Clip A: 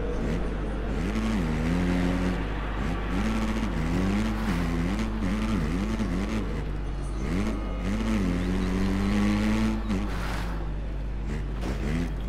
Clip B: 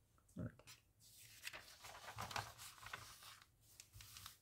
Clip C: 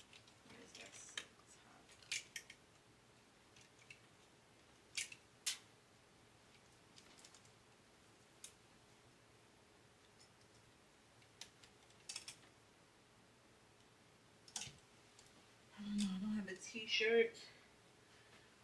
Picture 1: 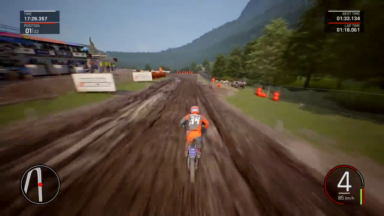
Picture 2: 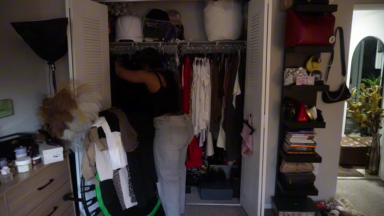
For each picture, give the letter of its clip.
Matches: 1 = A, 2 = C